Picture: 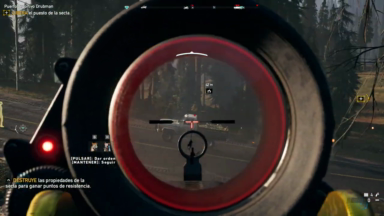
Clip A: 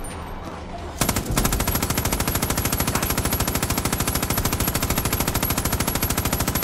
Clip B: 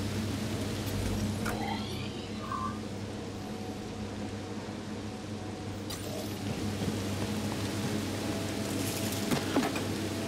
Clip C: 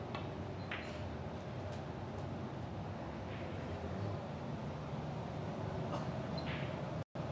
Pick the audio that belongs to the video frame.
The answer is A